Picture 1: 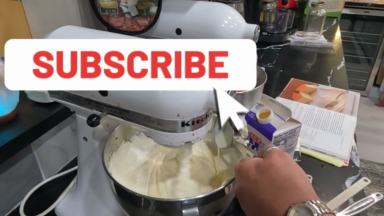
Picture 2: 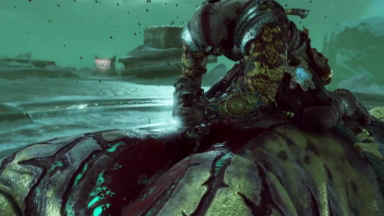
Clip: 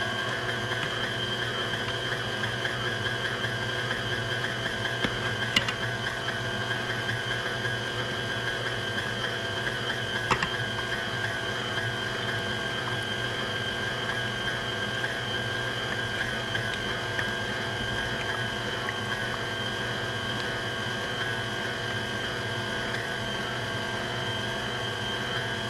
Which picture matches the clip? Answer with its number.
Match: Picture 1